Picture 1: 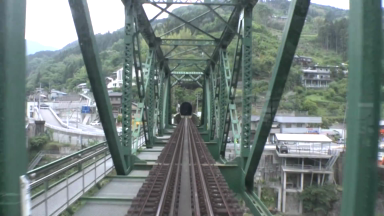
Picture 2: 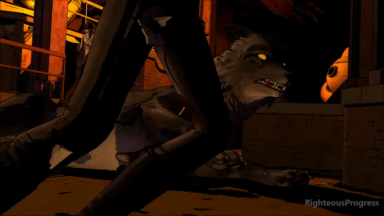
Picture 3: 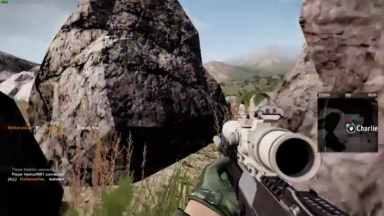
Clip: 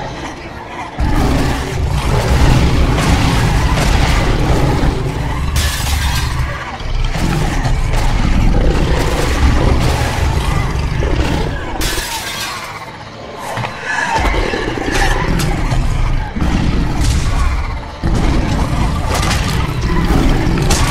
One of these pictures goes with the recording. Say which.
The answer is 2